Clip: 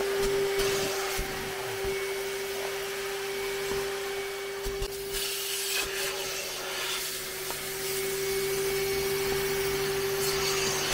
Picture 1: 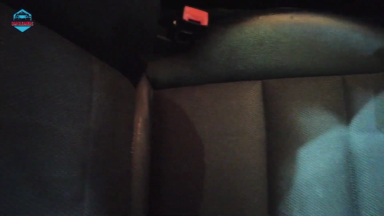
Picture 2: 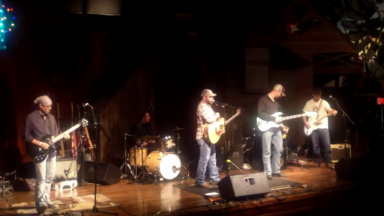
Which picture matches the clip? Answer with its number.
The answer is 1